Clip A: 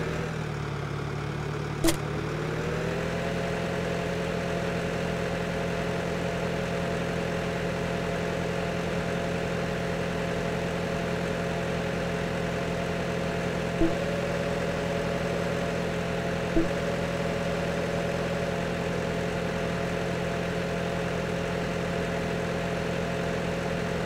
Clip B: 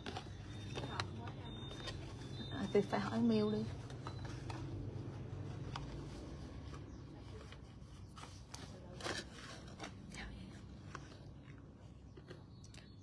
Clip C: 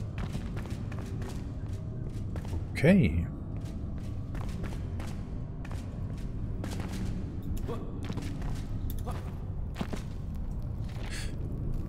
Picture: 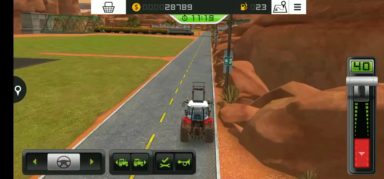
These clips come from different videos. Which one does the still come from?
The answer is A